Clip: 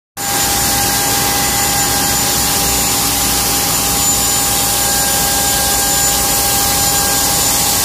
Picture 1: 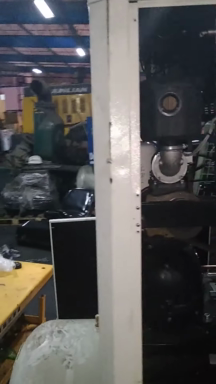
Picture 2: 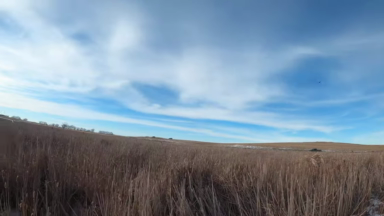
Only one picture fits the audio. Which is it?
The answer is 1